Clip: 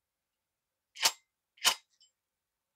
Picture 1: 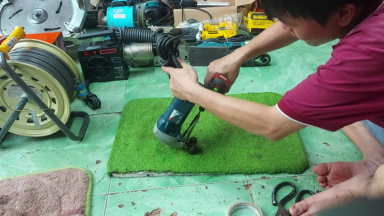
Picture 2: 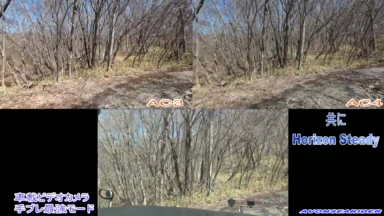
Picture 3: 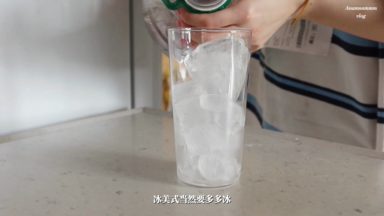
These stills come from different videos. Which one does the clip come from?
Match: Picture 1